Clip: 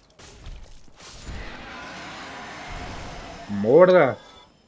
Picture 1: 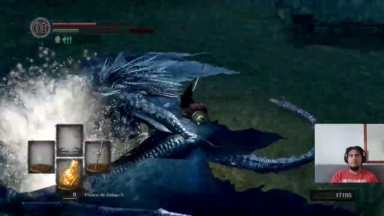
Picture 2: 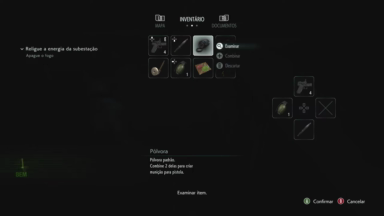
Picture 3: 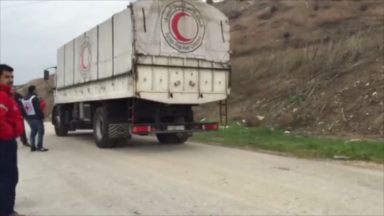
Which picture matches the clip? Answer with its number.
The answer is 1